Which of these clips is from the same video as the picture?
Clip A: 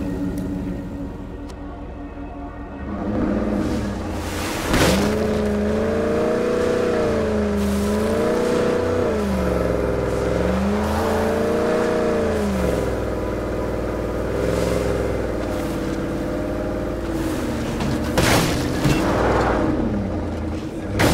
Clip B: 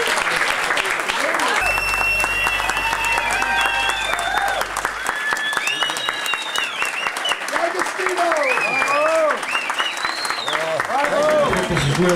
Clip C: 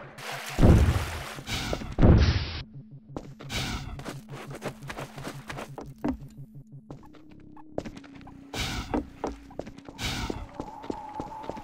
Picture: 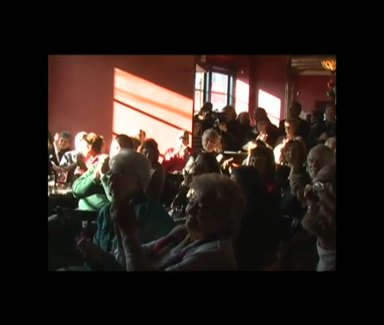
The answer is B